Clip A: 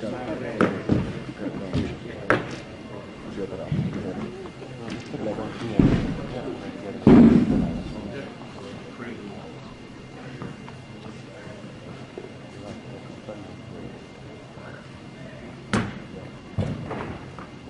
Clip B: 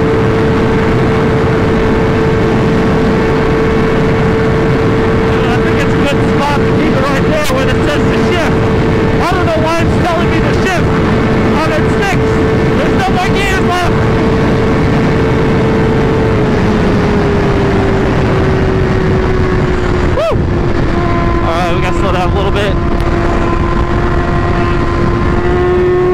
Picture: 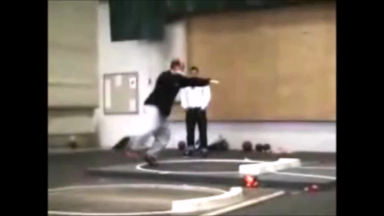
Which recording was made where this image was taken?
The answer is A